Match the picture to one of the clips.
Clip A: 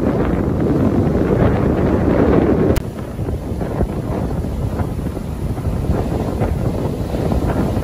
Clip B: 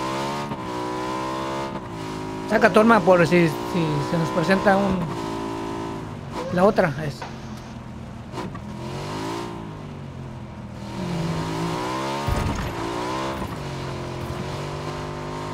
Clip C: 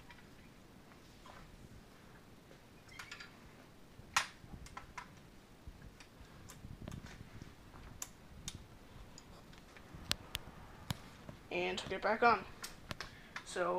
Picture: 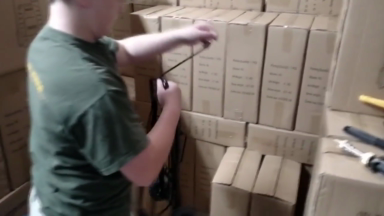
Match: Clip C